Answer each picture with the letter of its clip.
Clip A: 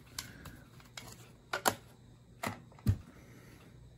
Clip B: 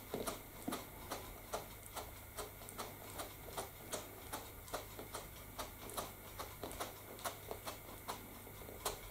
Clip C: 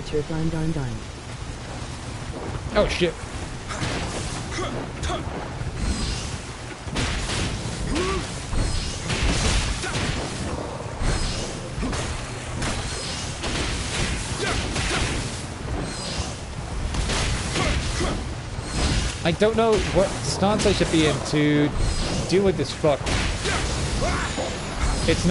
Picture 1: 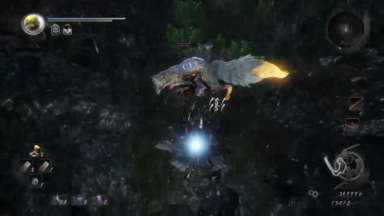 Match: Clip C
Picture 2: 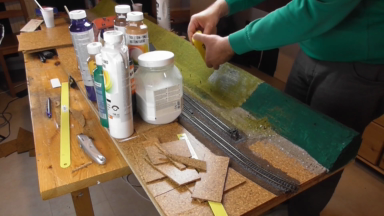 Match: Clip B